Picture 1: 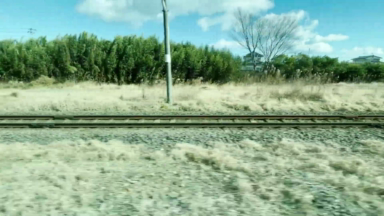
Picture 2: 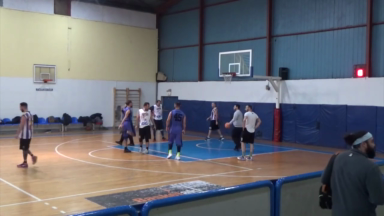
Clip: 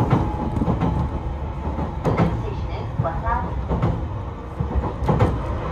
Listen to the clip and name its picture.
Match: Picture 1